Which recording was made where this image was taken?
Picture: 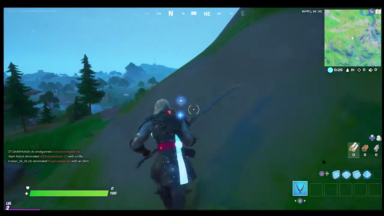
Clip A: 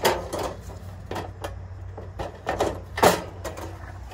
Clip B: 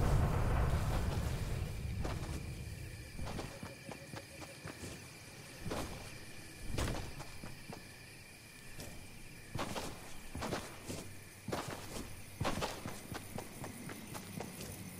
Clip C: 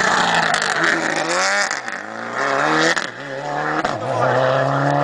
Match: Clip B